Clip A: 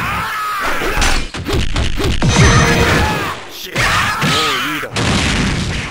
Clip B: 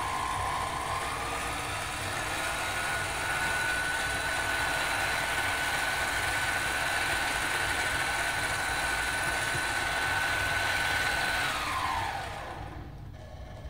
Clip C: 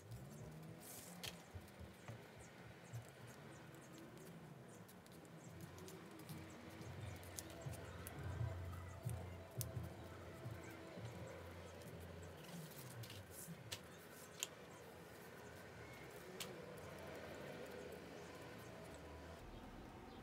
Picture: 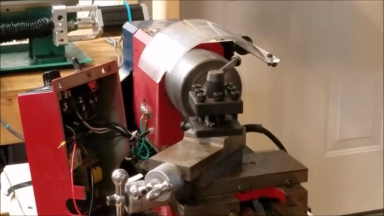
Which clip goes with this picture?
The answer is B